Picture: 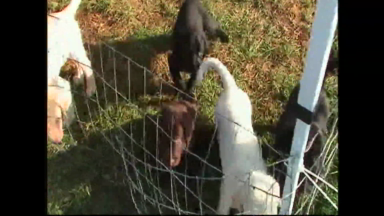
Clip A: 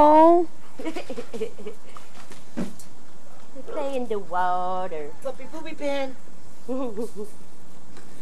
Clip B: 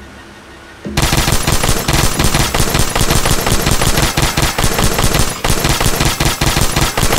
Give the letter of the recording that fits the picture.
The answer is A